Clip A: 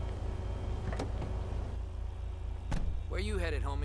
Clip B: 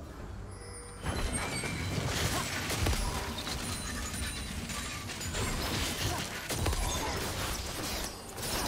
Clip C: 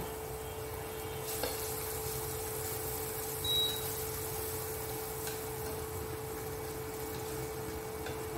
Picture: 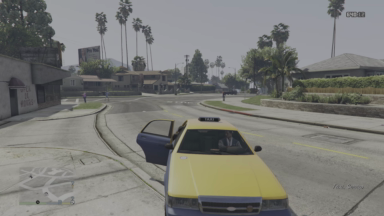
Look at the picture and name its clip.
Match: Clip A